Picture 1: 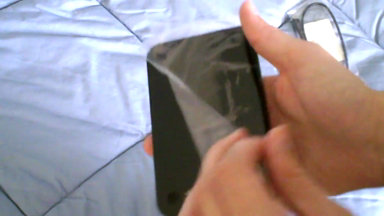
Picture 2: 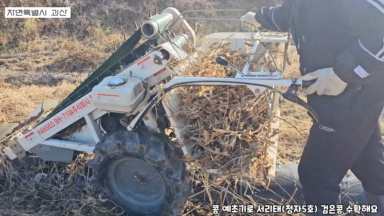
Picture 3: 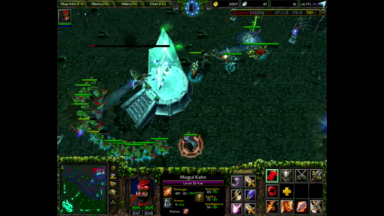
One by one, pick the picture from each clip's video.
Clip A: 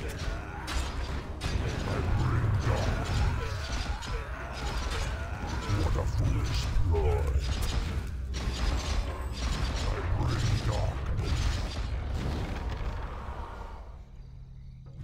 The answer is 3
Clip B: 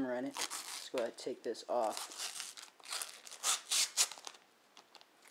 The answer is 1